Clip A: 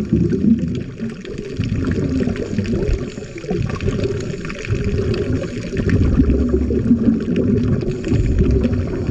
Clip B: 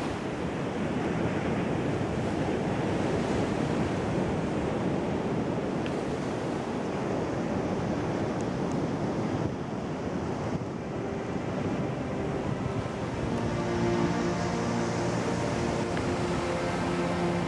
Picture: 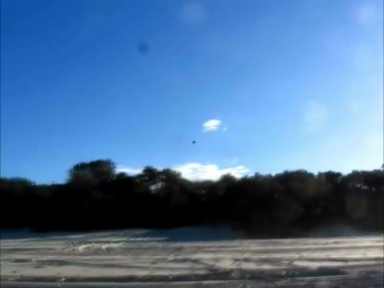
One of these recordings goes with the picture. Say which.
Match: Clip B